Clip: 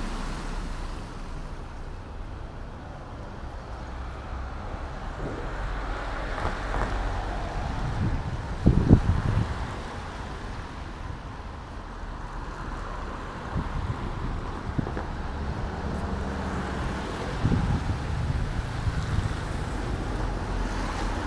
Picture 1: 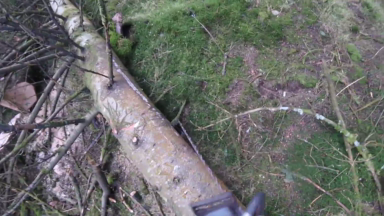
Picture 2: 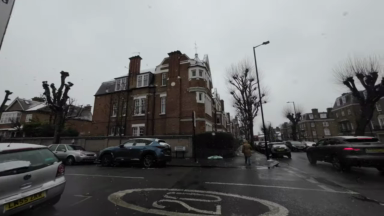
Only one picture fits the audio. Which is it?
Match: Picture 2